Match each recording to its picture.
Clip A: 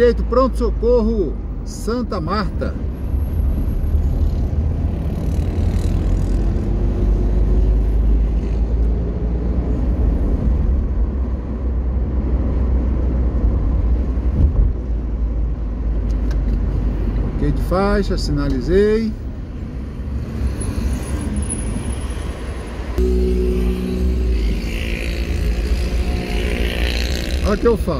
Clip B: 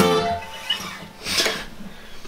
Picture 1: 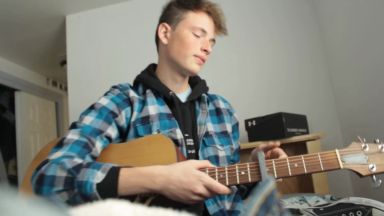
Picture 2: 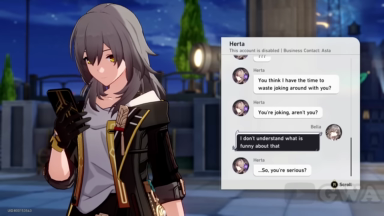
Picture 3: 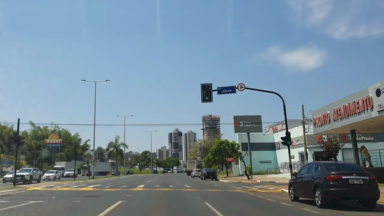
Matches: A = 3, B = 1